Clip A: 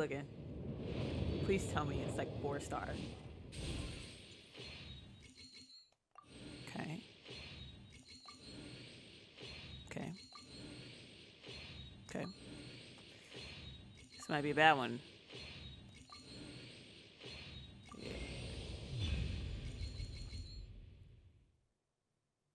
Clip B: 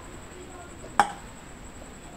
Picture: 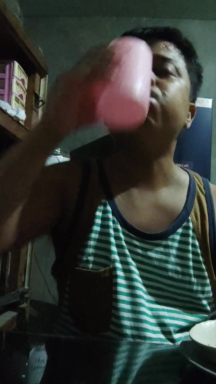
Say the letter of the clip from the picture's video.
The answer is B